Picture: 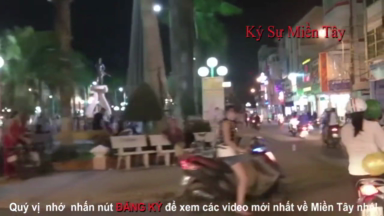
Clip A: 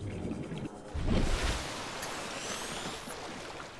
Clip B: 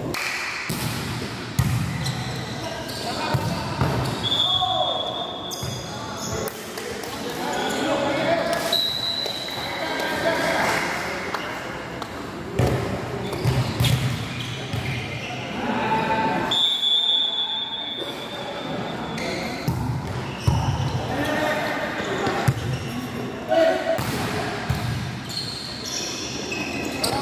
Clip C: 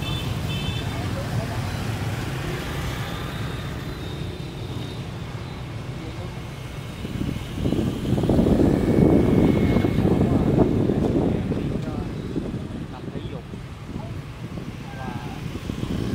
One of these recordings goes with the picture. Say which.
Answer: C